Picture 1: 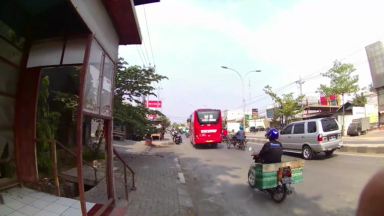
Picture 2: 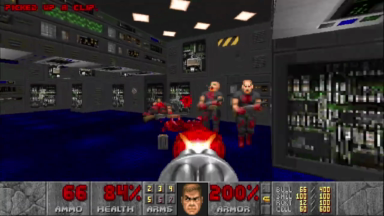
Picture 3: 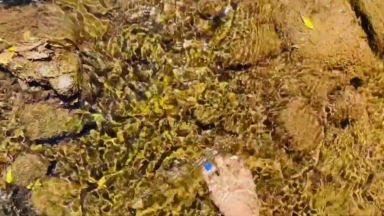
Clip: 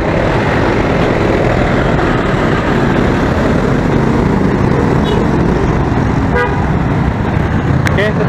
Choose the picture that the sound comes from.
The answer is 1